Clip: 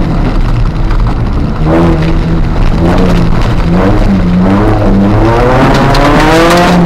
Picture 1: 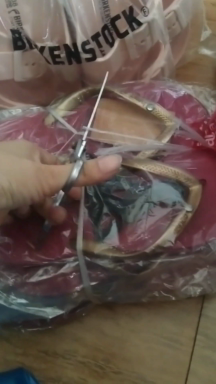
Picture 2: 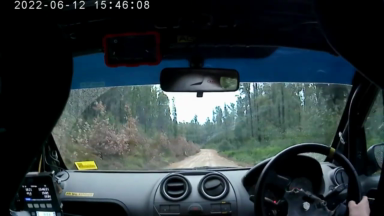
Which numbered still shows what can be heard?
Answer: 2